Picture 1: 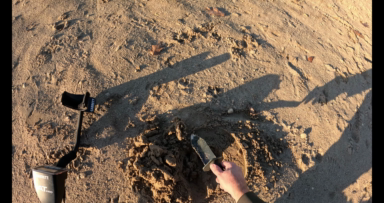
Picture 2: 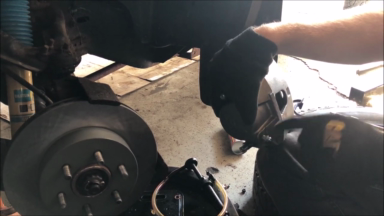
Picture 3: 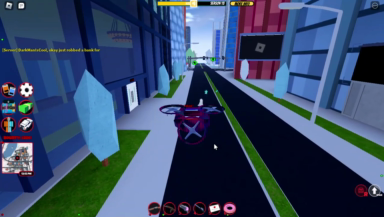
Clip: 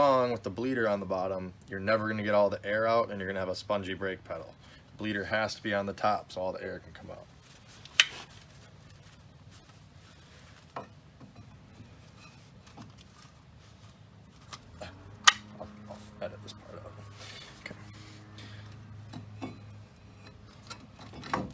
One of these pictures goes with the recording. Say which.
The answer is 2